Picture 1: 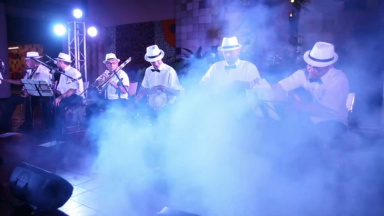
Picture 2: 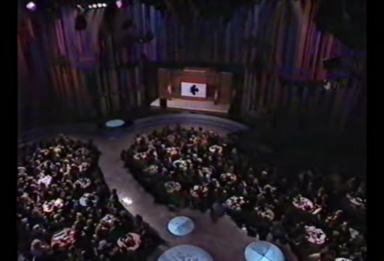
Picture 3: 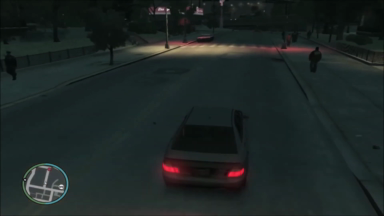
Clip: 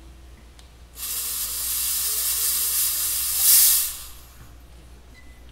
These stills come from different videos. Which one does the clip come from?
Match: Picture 1